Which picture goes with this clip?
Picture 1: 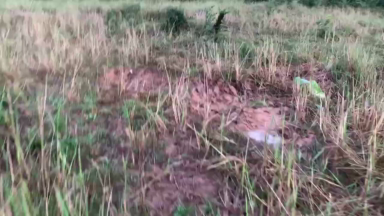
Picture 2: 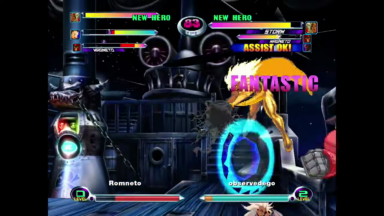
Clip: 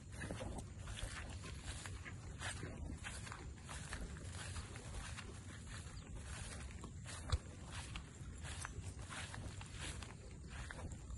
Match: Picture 1